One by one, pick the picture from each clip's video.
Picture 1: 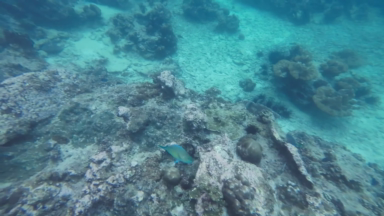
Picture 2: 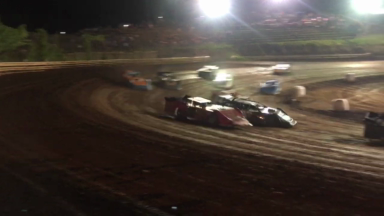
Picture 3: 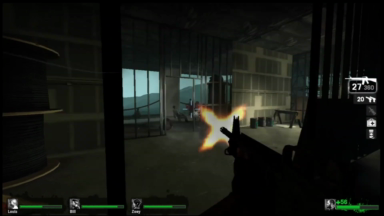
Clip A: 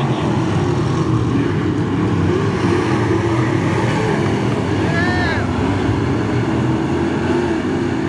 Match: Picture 2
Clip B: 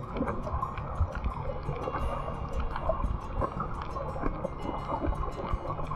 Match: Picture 1